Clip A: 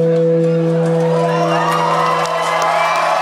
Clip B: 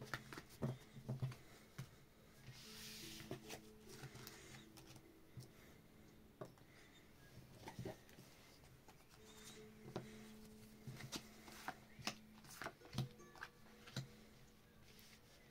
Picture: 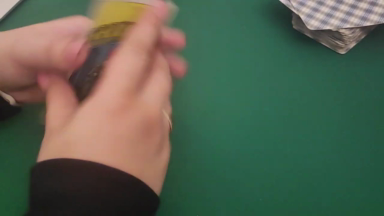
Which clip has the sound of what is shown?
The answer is B